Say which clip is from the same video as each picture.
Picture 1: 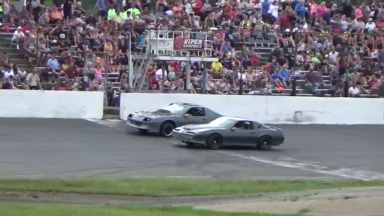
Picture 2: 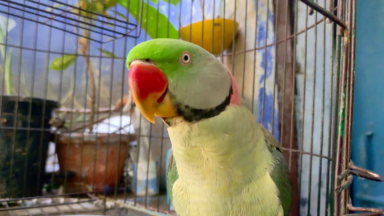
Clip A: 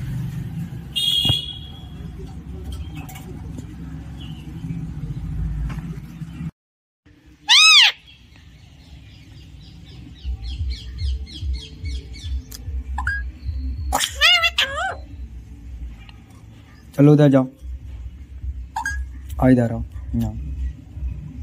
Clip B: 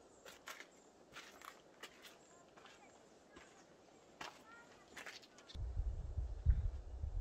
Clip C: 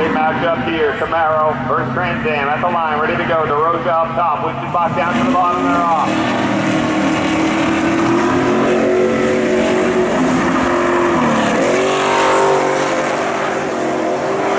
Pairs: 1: C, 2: A